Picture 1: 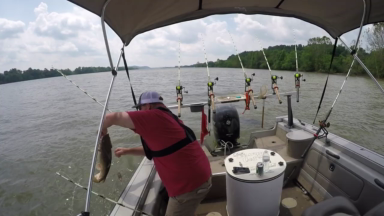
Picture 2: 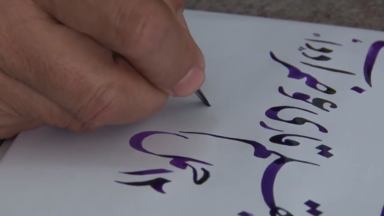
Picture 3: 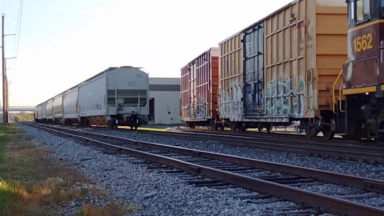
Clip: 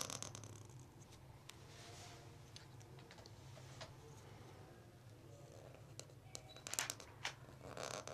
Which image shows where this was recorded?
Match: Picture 2